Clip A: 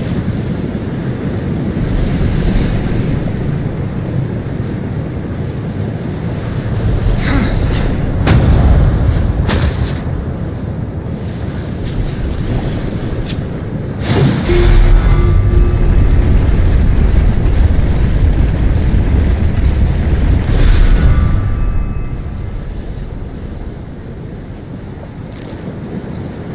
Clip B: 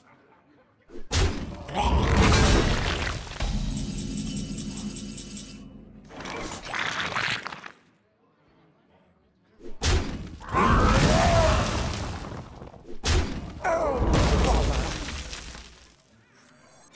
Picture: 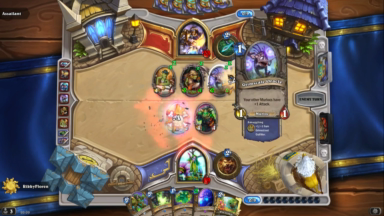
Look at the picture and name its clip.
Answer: B